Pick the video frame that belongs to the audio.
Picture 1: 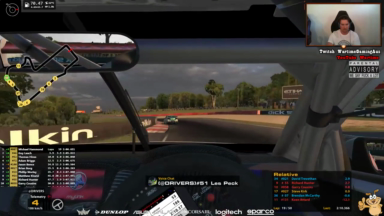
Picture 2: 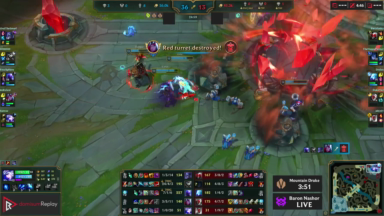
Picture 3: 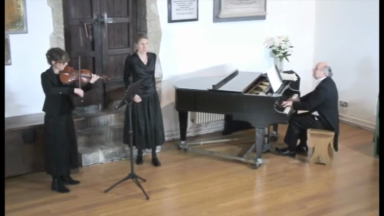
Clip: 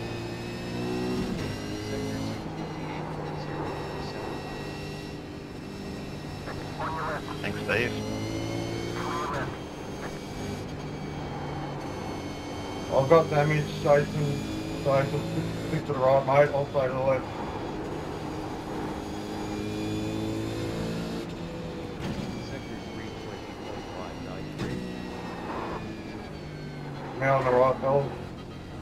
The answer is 1